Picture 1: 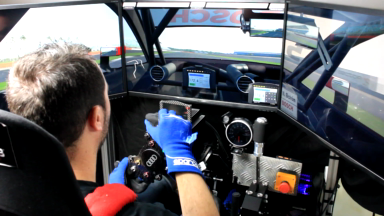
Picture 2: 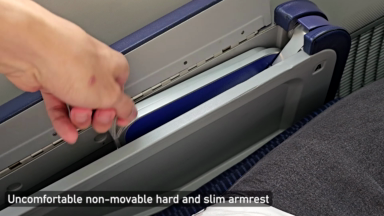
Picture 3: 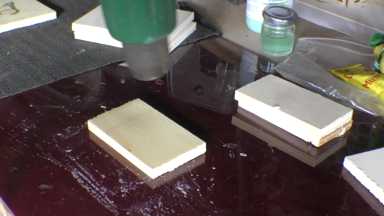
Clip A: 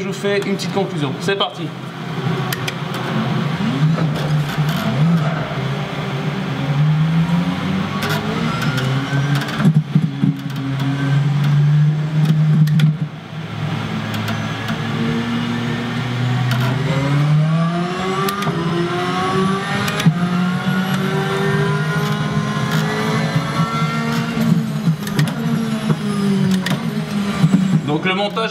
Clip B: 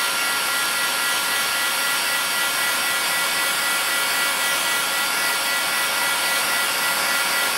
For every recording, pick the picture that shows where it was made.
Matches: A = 1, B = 3